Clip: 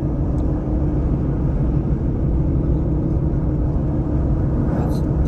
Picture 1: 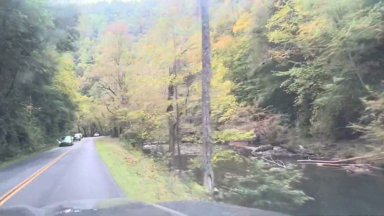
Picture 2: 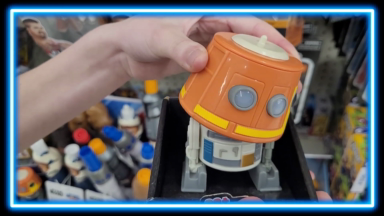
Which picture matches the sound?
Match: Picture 1